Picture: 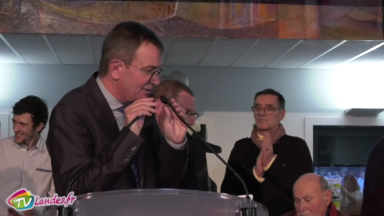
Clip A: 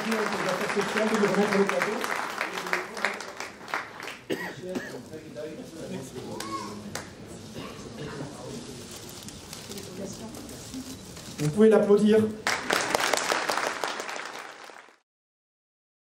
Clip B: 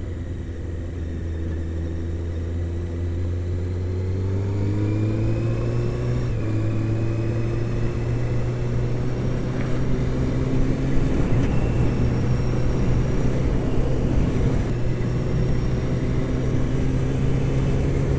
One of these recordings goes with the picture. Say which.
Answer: A